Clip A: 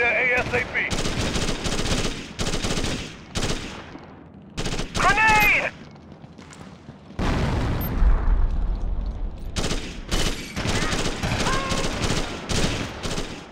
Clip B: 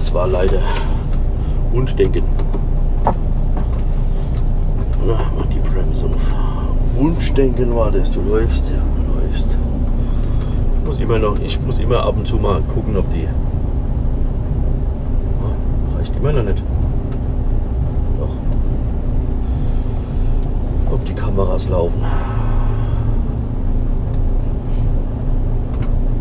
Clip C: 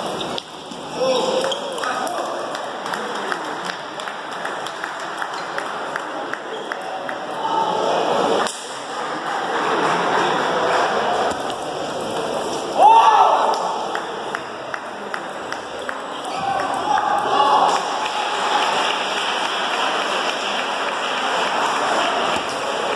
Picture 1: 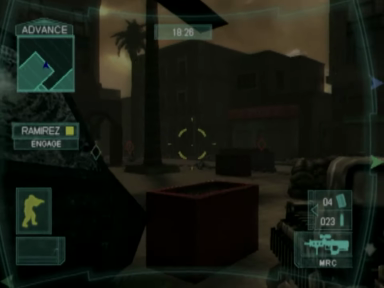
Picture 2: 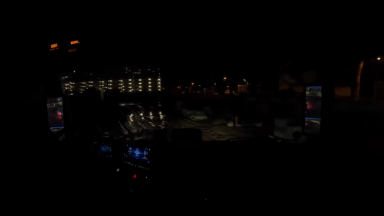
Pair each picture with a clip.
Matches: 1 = A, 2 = B